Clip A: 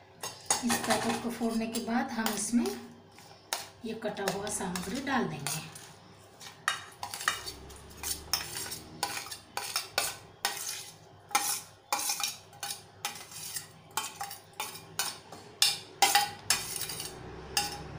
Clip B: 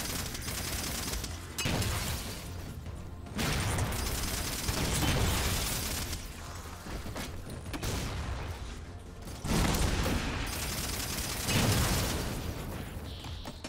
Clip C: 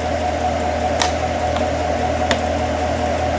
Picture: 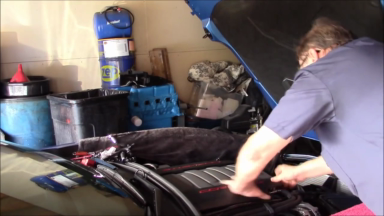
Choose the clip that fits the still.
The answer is C